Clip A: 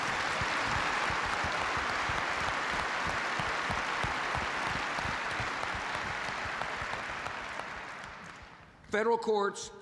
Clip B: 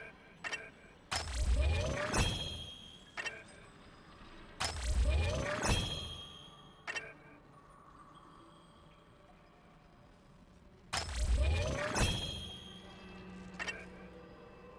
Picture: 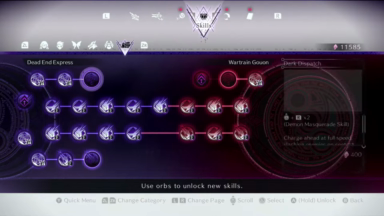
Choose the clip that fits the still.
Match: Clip B